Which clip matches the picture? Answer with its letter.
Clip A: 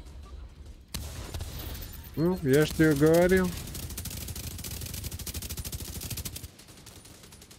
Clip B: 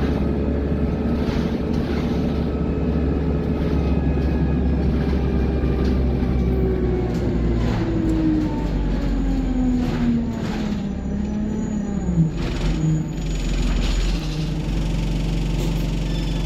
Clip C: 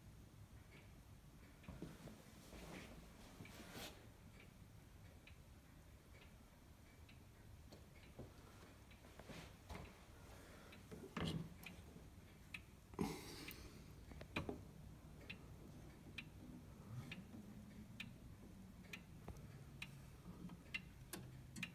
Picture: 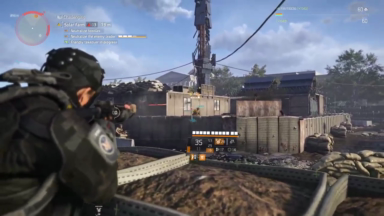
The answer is A